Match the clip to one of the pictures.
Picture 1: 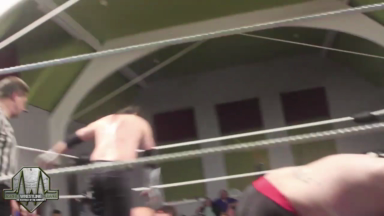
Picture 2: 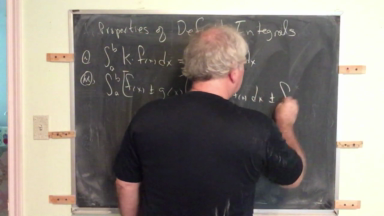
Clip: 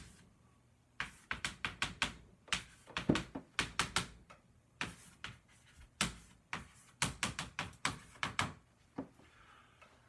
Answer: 2